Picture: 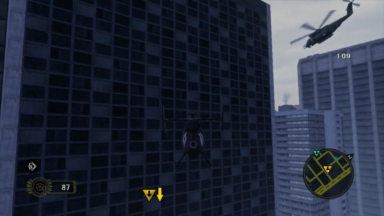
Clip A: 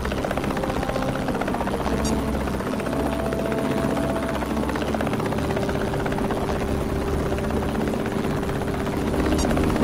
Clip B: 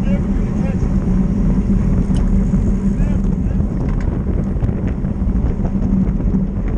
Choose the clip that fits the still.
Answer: A